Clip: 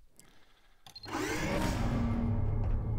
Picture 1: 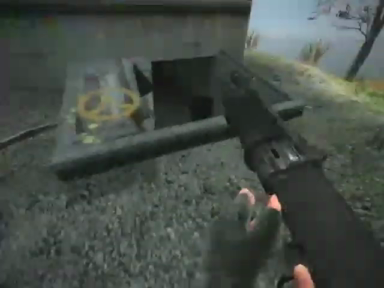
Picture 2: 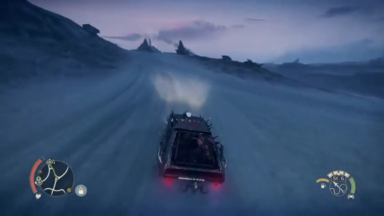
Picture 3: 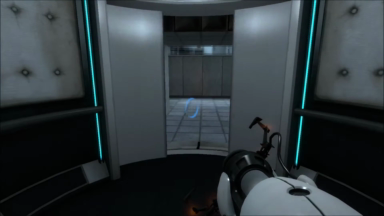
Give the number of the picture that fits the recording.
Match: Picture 3